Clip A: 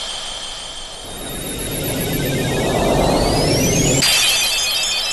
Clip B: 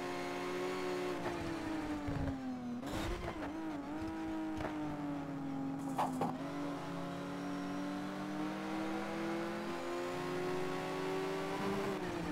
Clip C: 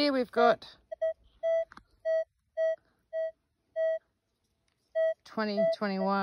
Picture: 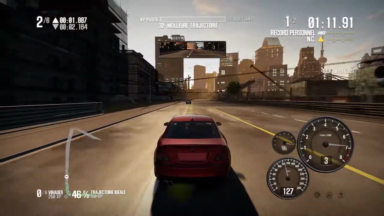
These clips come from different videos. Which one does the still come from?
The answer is B